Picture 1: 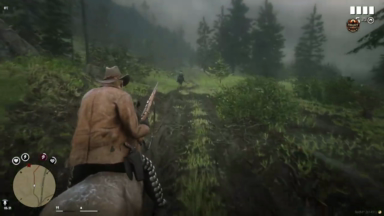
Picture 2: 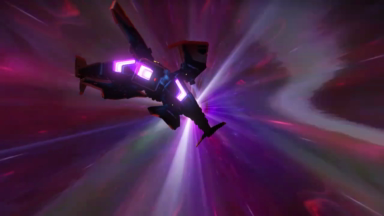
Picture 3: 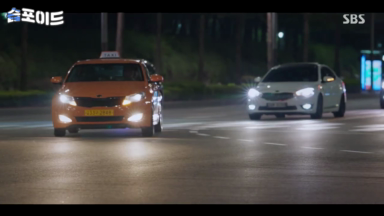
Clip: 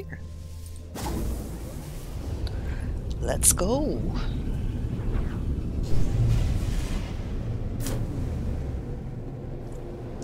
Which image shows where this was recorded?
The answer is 2